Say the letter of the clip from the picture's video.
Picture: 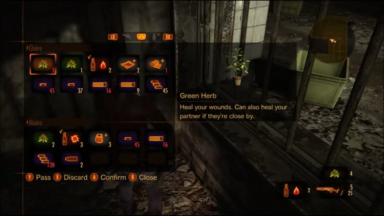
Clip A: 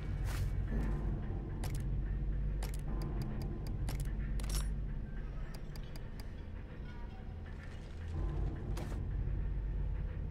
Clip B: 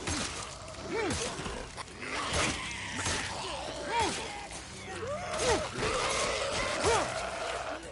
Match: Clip A